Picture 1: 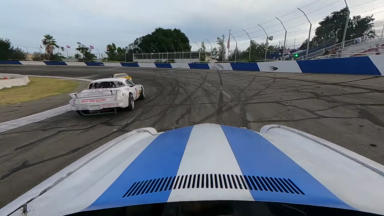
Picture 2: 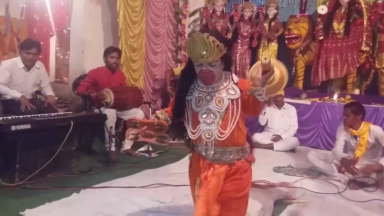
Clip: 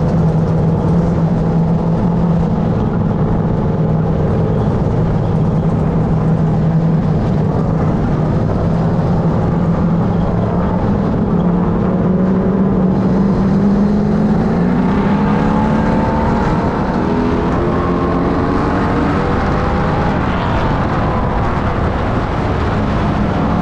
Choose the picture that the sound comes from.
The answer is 1